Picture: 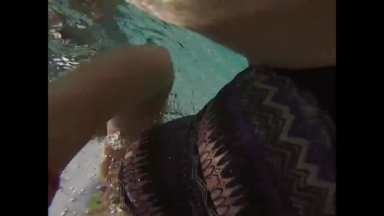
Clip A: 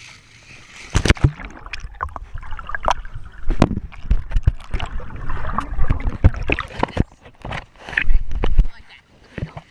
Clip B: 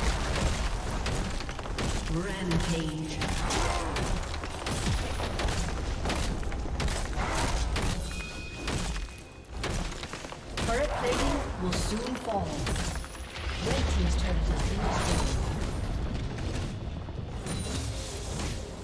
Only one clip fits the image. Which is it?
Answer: A